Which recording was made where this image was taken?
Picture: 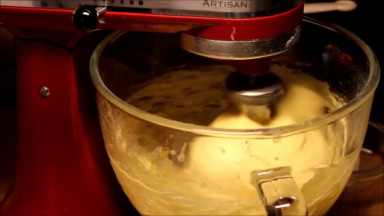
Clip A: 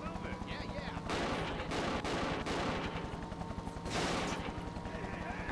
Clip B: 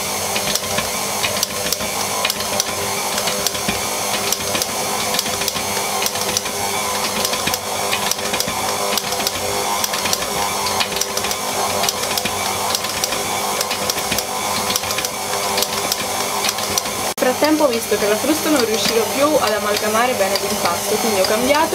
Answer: B